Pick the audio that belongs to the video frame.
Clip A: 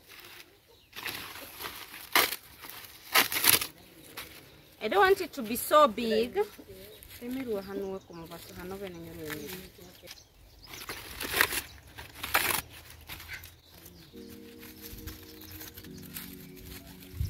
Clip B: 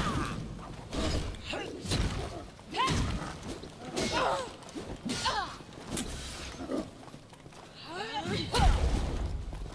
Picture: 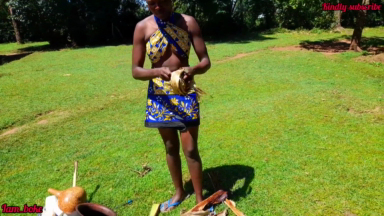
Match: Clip A